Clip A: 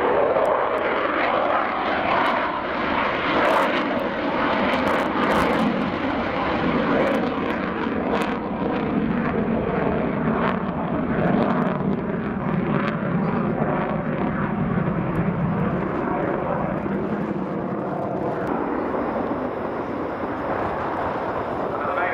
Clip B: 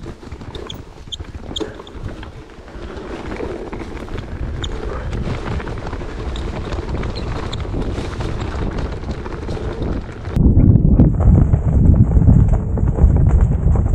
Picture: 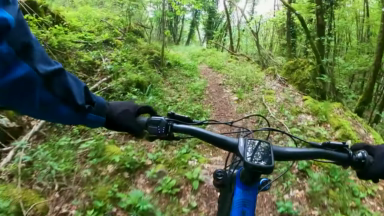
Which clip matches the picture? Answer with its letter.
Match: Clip B